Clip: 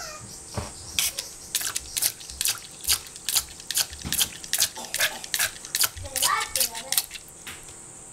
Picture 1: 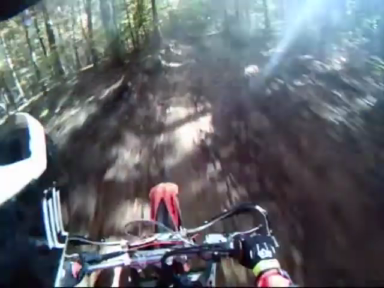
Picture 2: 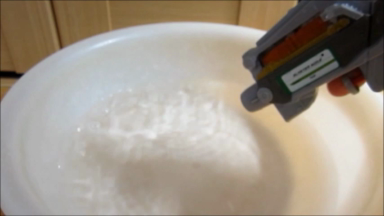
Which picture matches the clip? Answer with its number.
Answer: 2